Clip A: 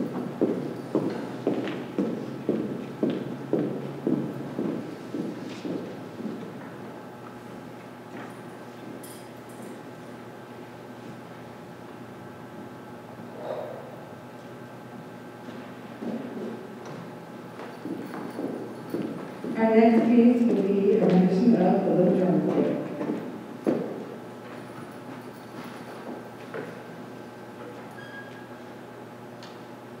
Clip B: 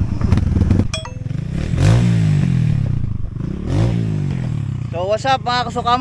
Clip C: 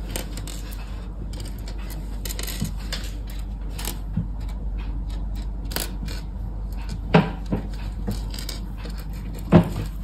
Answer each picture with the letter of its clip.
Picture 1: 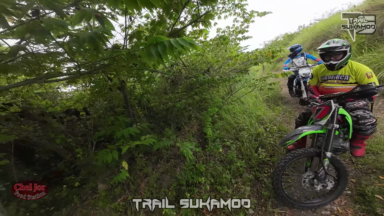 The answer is B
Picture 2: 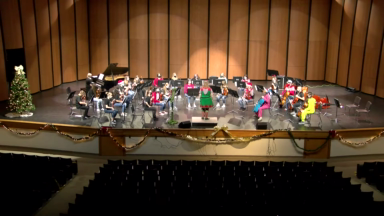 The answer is A